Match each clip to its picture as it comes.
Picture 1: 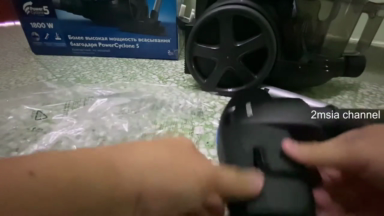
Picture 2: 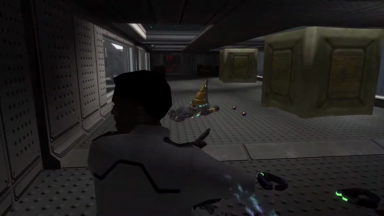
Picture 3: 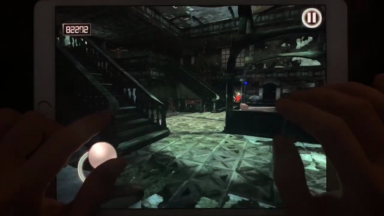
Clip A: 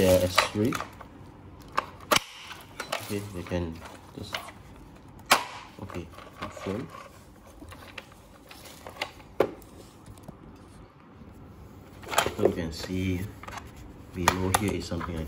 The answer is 1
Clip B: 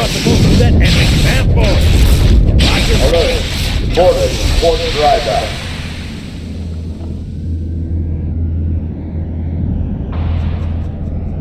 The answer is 2